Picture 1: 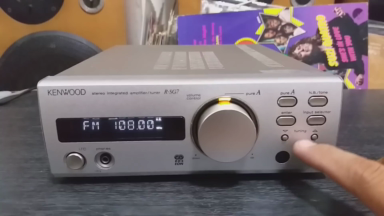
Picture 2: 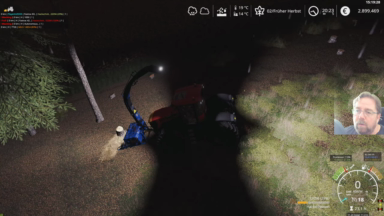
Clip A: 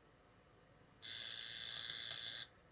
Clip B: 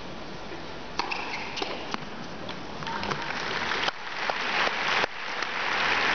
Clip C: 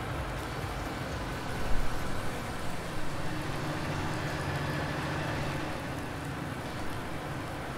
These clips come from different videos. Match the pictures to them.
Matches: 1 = A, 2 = C